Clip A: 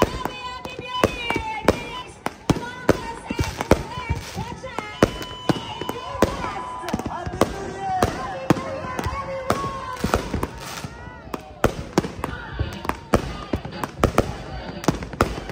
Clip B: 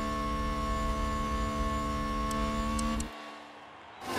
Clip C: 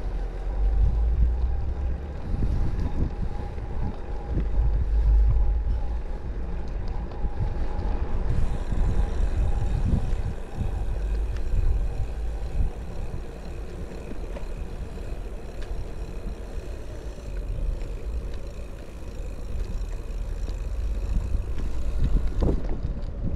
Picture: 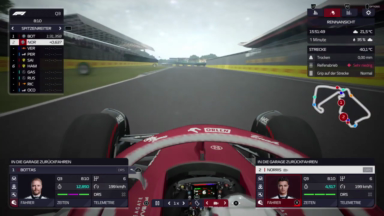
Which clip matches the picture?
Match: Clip B